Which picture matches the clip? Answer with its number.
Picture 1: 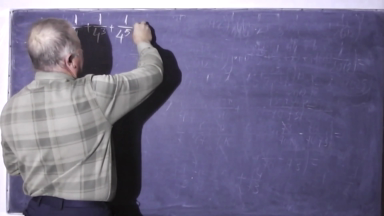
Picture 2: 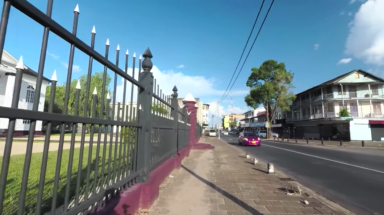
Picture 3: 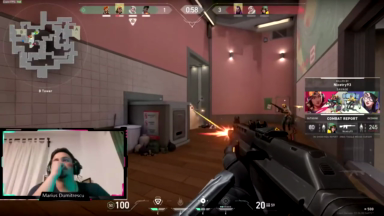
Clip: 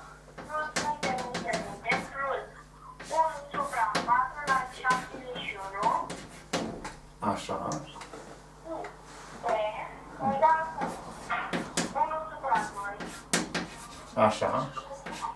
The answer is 1